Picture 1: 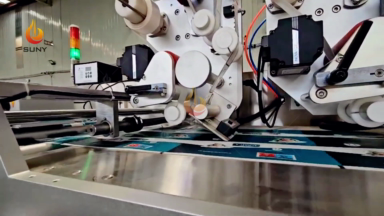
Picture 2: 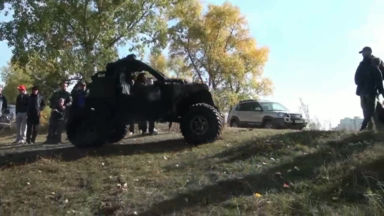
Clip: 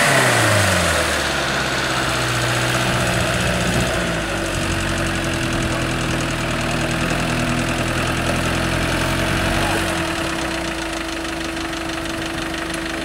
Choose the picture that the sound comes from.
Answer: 2